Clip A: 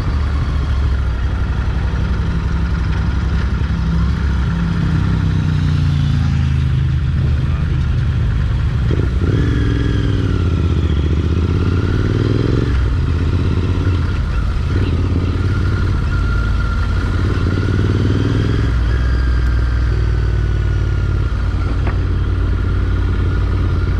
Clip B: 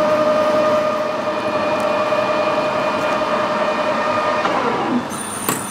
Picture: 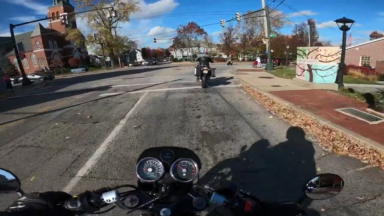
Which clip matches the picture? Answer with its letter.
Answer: A